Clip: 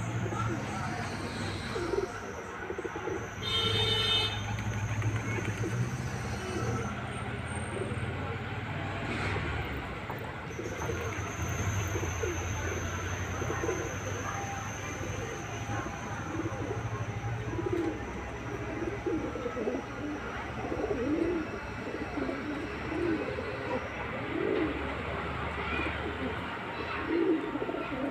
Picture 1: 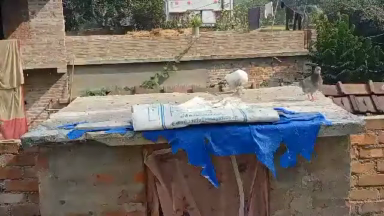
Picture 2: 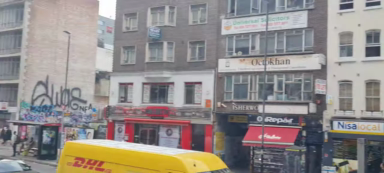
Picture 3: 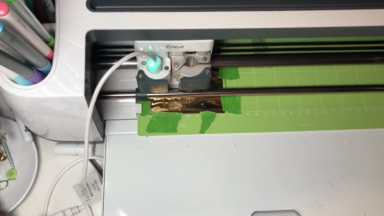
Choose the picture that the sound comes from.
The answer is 1